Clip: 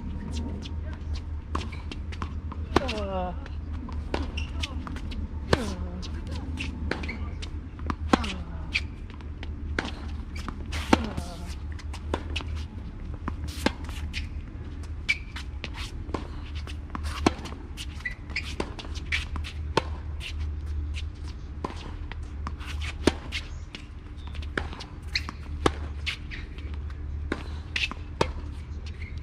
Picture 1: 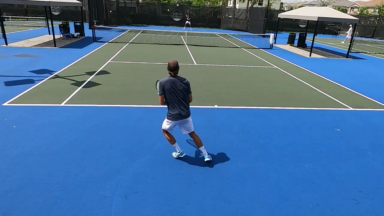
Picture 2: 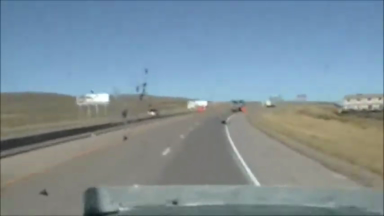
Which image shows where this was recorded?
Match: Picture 1